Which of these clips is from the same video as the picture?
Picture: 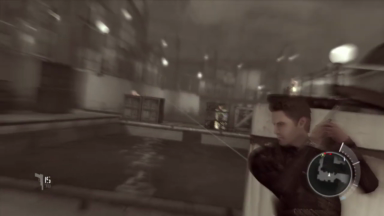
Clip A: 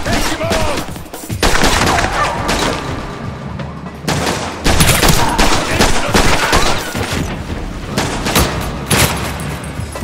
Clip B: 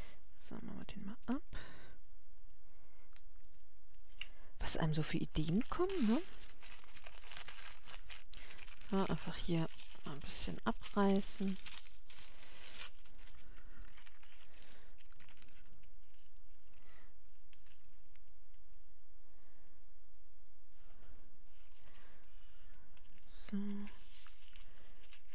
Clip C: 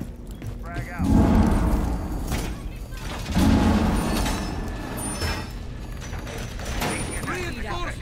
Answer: A